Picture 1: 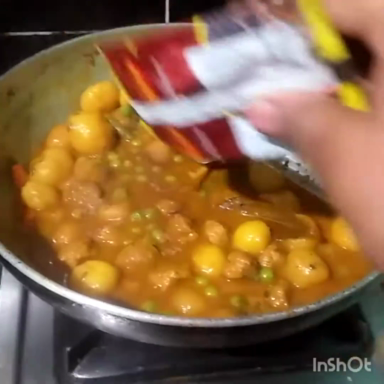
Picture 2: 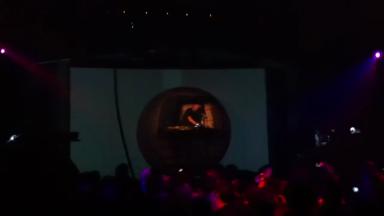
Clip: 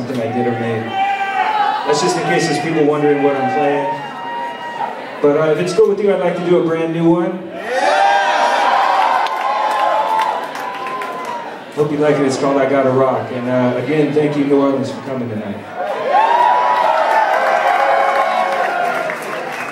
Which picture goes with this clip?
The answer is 2